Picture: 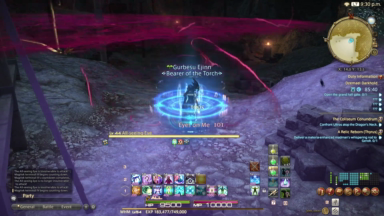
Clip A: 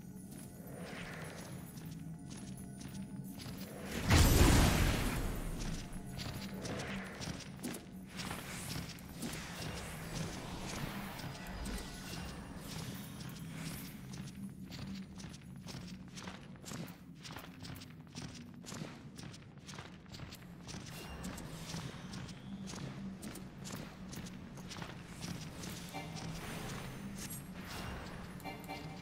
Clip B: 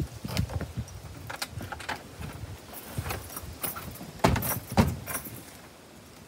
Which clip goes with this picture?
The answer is A